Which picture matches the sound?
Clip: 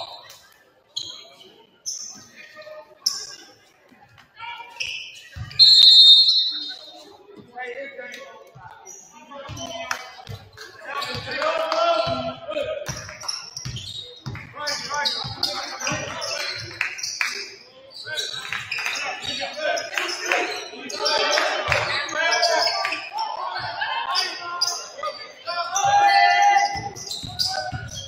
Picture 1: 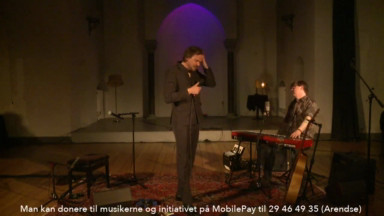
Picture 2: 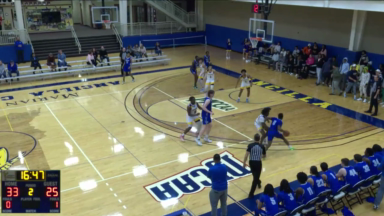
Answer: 2